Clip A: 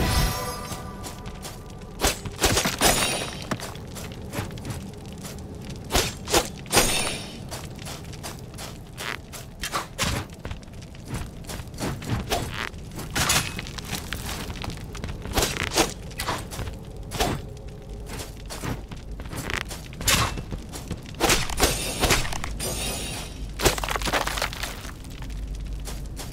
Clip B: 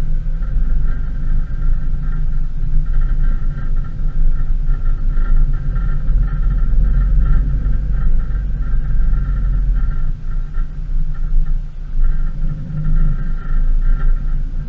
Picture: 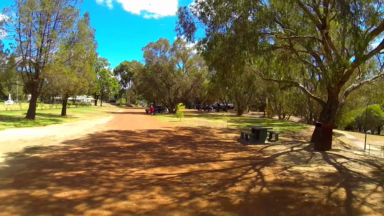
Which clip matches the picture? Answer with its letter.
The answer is B